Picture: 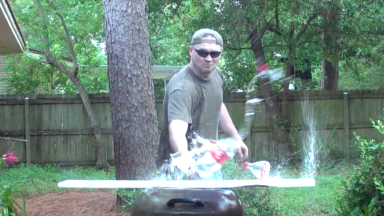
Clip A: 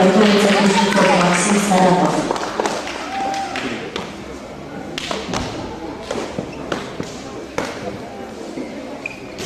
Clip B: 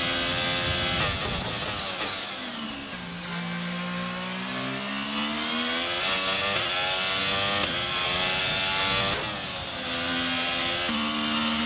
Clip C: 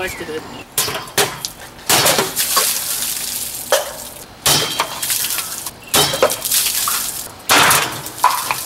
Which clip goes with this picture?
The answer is C